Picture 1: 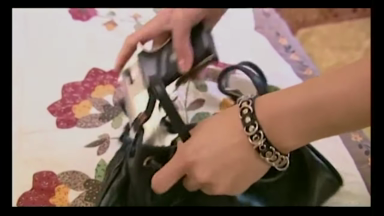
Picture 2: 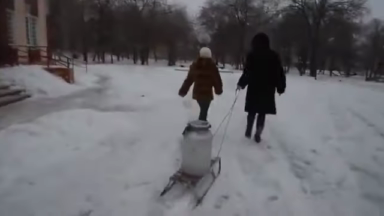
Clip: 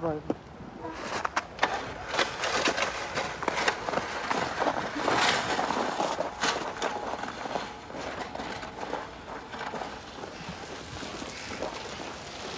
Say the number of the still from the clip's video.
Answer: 2